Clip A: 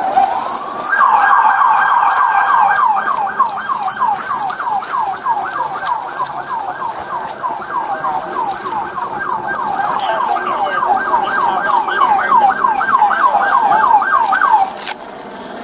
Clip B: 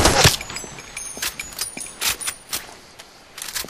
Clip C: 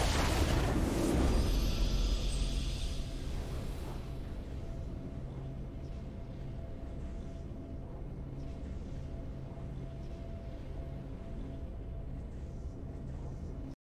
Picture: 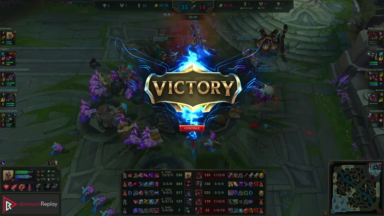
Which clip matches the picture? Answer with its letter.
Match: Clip C